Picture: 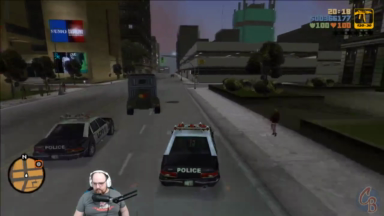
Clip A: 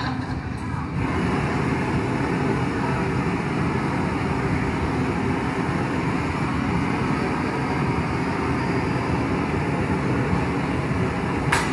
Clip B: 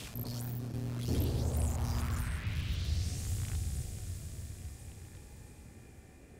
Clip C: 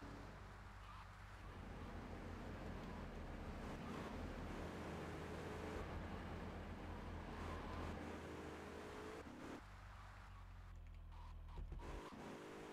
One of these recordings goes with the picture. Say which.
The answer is C